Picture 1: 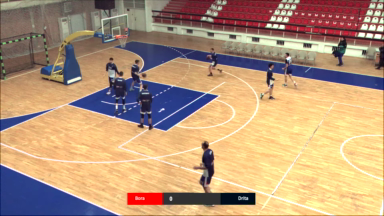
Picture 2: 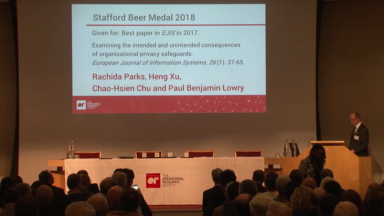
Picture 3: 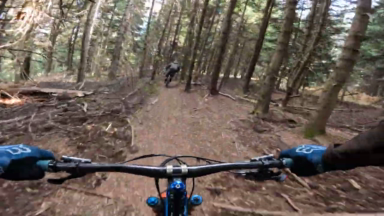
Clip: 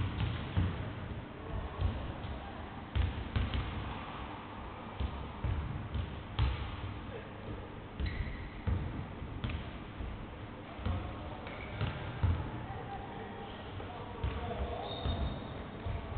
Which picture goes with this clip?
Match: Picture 1